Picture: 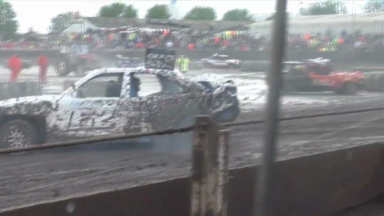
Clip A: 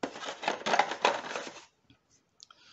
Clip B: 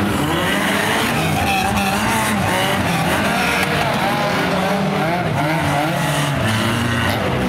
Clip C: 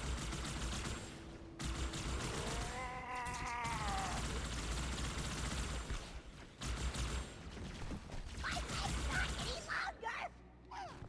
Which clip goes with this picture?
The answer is B